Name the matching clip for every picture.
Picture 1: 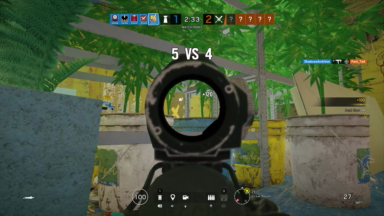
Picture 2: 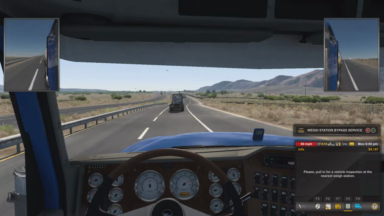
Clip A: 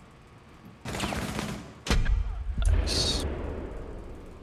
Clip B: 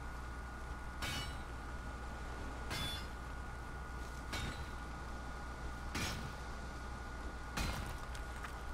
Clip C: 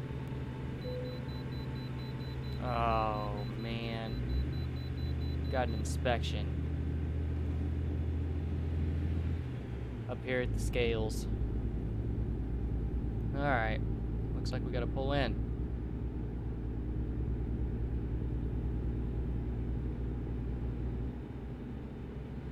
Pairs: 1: A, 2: C